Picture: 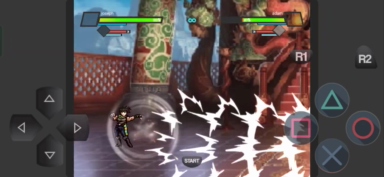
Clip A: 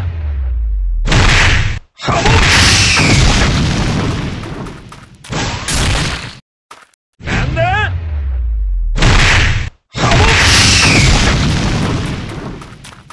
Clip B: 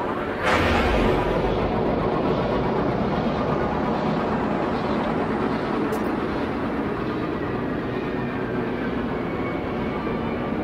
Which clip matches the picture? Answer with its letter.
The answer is A